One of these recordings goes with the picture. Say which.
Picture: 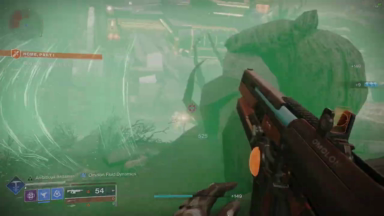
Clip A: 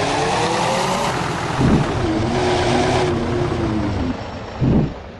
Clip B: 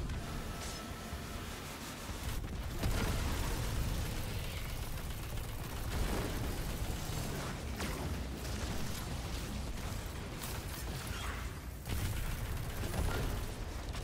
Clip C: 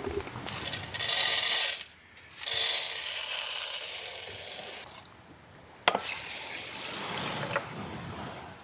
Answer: B